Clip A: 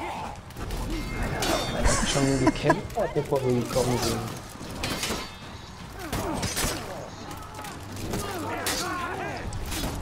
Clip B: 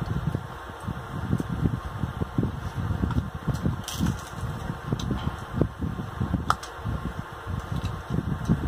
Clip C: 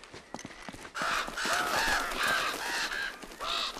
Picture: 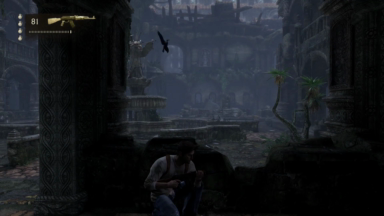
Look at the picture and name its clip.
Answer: C